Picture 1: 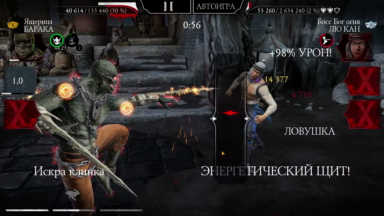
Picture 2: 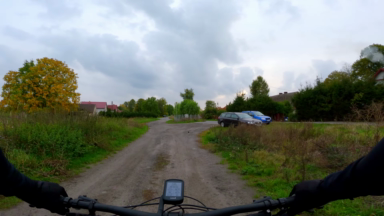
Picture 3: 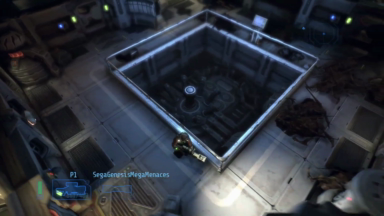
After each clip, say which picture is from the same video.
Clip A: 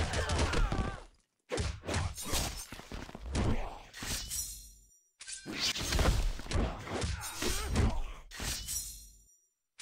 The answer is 1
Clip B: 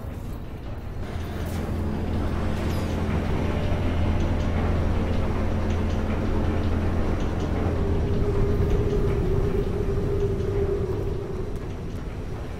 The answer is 3